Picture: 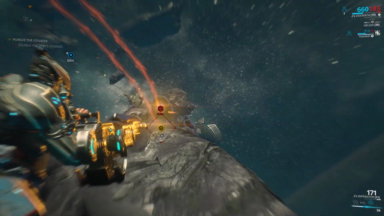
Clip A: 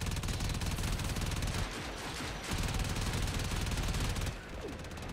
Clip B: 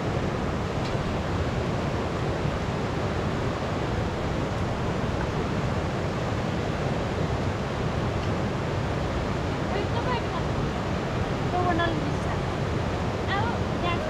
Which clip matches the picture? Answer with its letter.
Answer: A